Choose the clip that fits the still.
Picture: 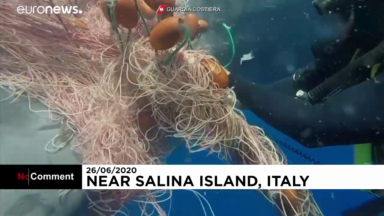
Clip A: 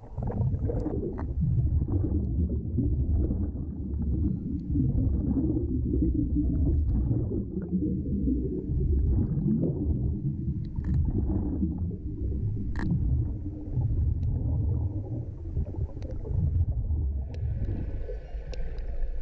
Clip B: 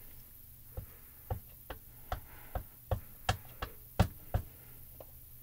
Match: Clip A